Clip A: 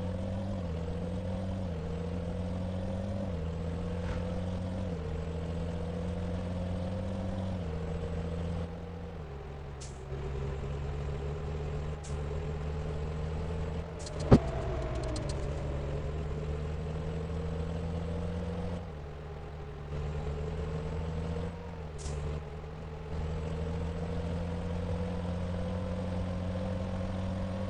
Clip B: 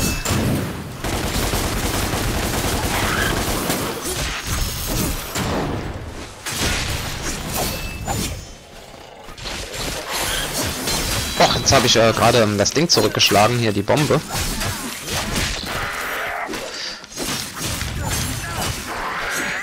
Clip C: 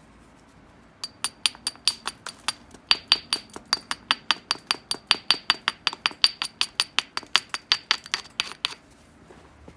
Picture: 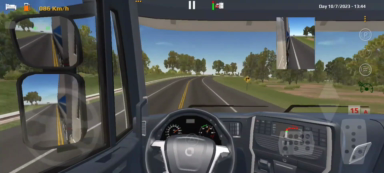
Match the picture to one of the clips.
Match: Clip A